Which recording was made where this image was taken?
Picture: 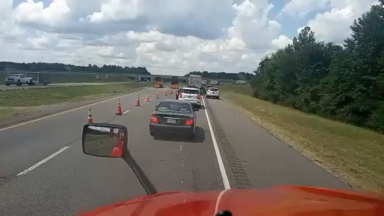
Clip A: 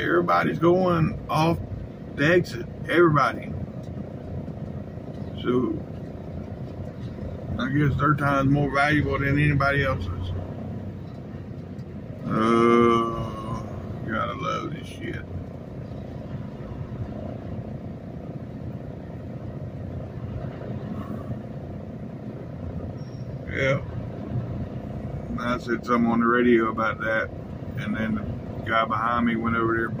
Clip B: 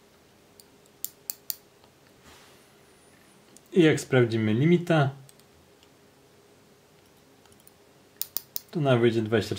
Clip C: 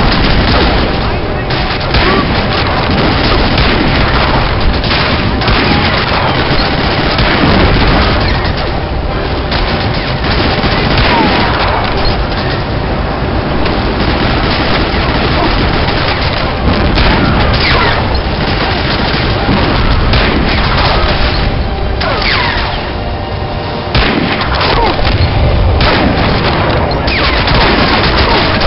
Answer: A